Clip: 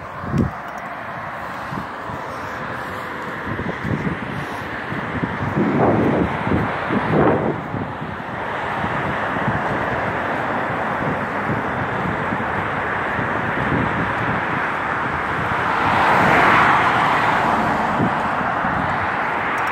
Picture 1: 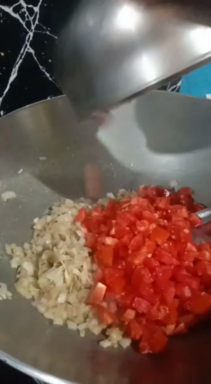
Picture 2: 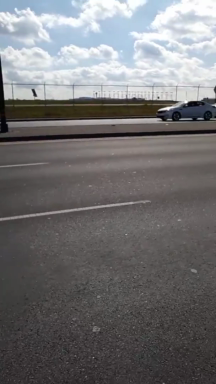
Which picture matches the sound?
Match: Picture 2